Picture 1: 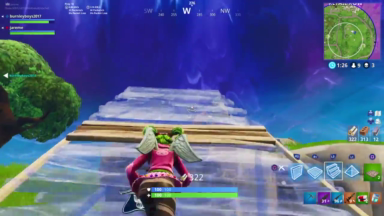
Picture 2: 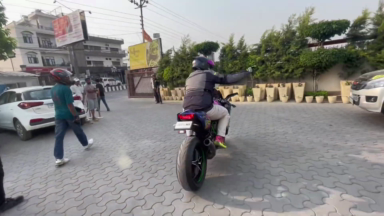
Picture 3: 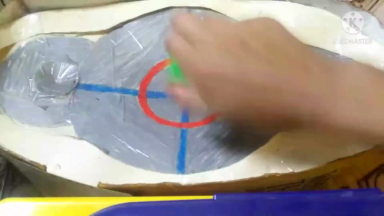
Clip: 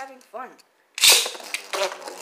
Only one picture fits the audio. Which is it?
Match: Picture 3